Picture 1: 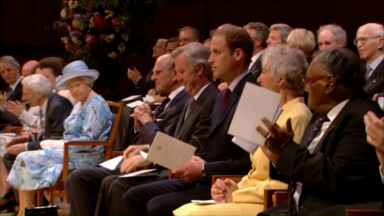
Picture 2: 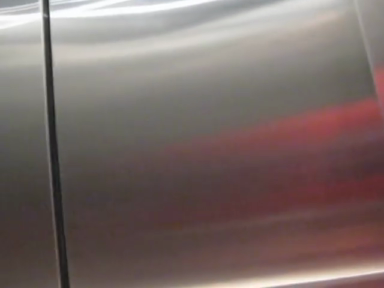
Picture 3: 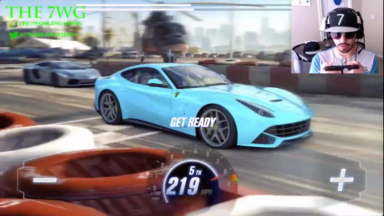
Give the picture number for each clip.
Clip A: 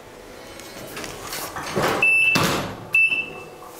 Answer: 2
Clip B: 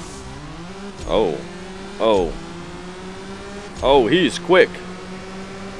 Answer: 3